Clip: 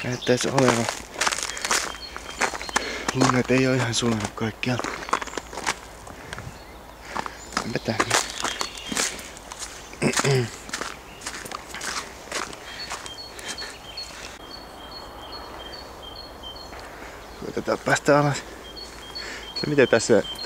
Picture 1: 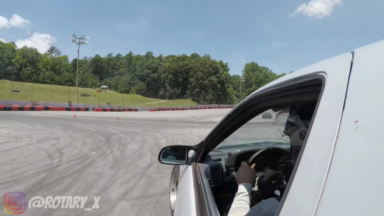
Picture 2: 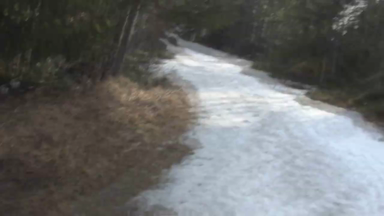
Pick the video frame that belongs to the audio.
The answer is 2